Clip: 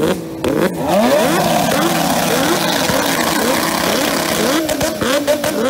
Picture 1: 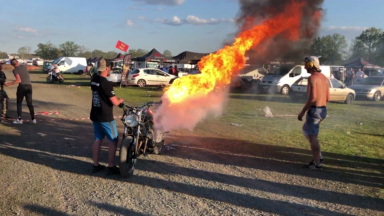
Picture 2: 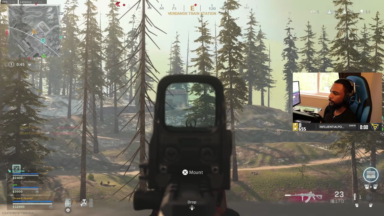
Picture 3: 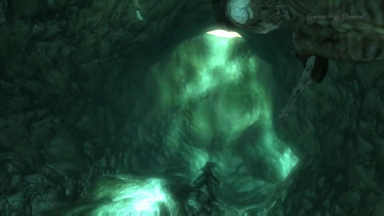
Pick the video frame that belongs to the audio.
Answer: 1